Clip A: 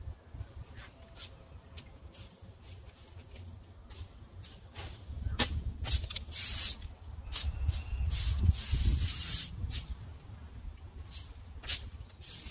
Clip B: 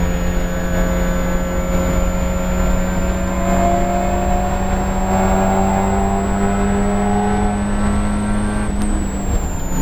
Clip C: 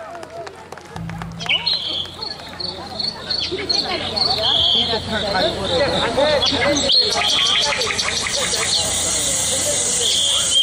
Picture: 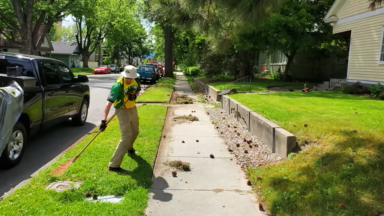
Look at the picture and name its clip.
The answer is A